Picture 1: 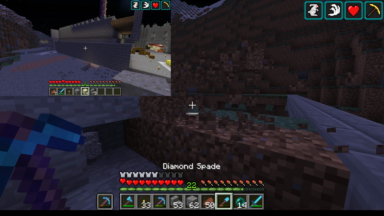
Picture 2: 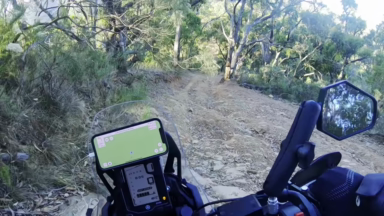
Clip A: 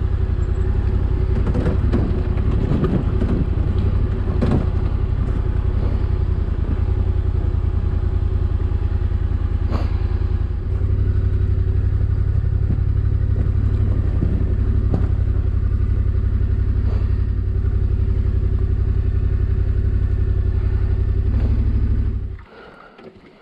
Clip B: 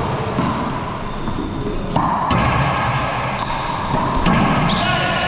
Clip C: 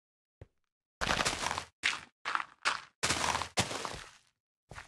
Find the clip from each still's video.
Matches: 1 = C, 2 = A